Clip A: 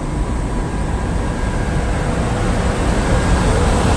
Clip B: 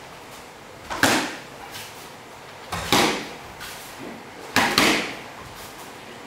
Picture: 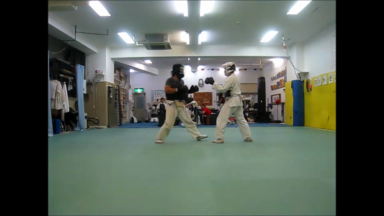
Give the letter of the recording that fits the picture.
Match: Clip B